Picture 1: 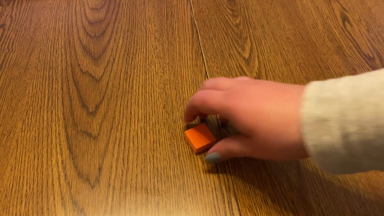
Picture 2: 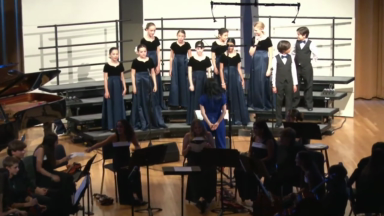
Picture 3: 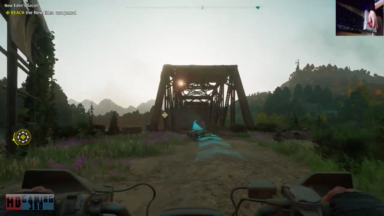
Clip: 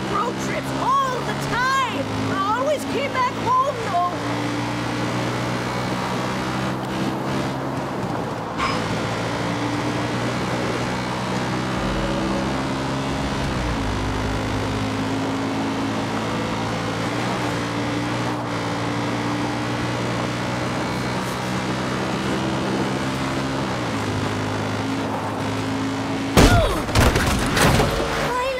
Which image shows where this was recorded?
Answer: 3